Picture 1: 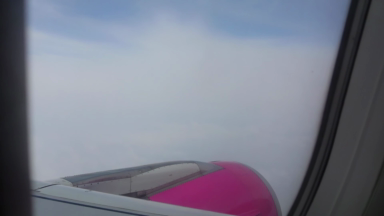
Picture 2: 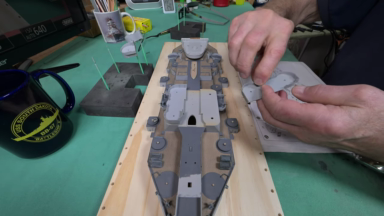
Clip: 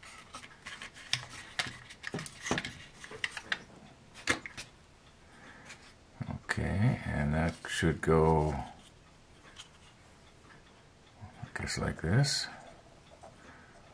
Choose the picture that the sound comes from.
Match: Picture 2